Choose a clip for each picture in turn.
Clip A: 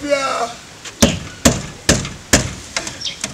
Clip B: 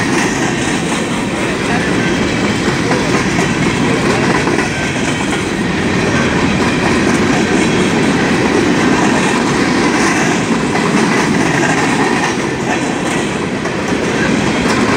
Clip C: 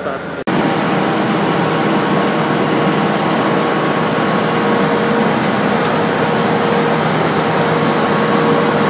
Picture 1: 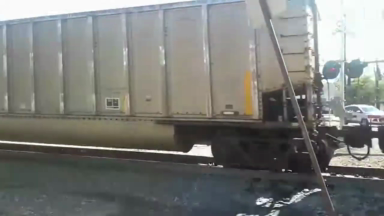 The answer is B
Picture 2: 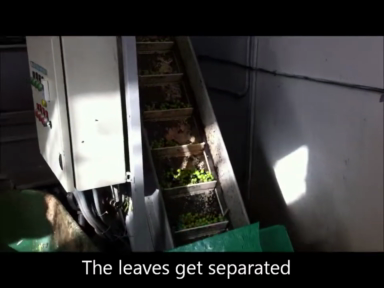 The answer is C